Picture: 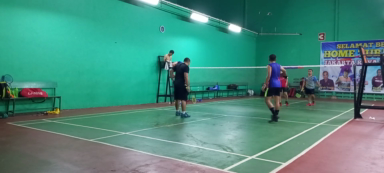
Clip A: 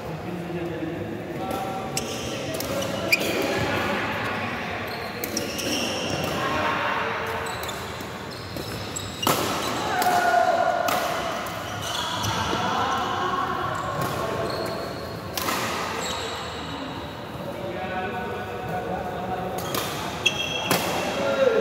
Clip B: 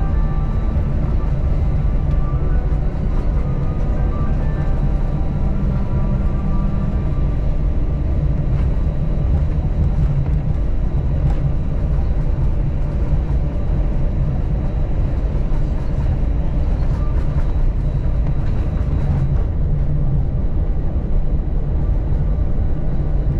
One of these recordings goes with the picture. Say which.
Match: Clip A